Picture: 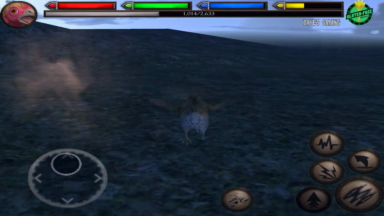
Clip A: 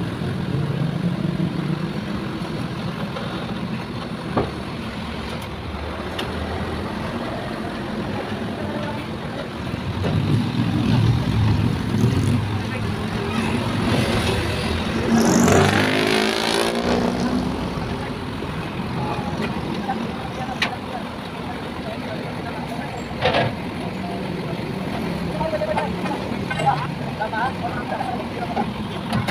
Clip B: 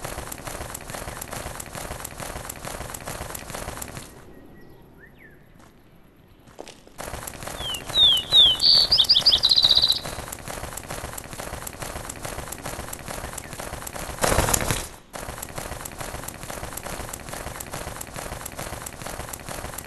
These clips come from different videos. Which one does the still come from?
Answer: B